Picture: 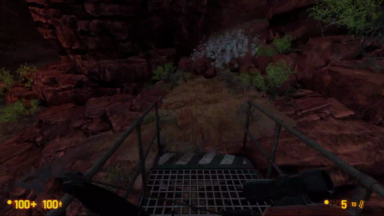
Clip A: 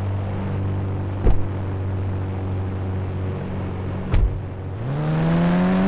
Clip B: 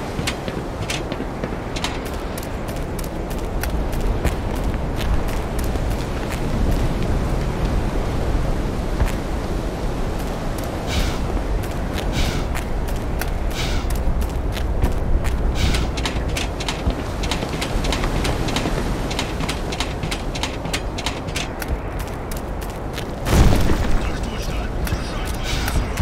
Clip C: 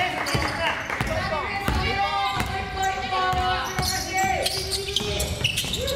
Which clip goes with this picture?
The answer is B